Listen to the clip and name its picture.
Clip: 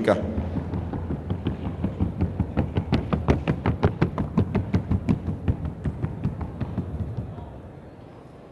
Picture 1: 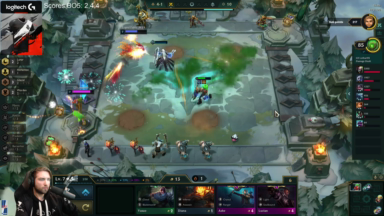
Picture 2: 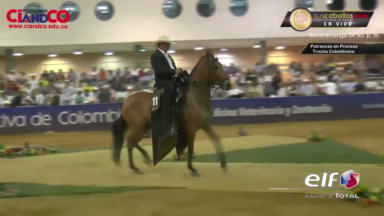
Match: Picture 2